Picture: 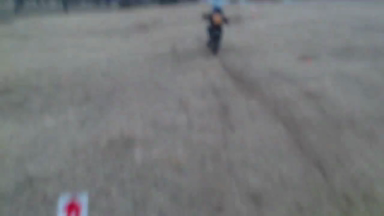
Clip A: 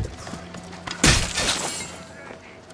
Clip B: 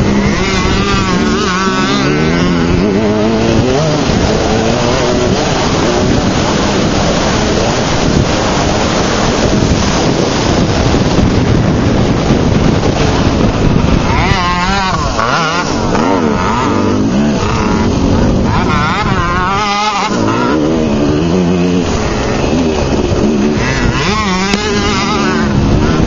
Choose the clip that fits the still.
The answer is B